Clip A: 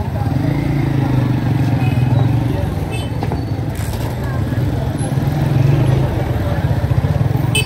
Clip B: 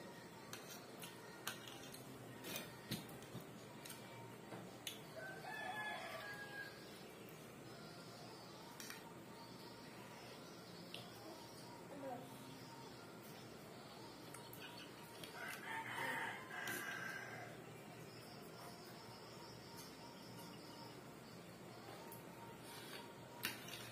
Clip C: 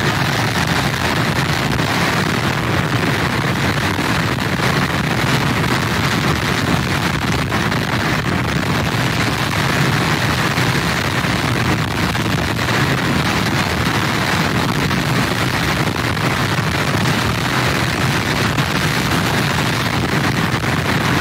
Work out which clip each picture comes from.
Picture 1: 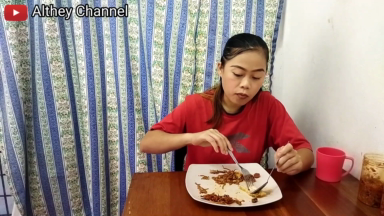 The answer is B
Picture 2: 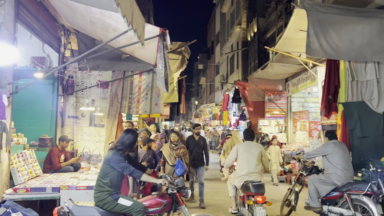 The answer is A